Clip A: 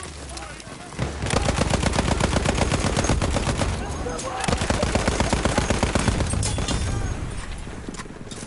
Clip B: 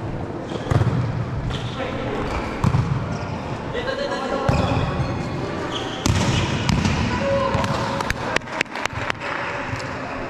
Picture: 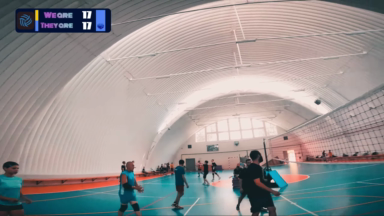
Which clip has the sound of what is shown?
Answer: B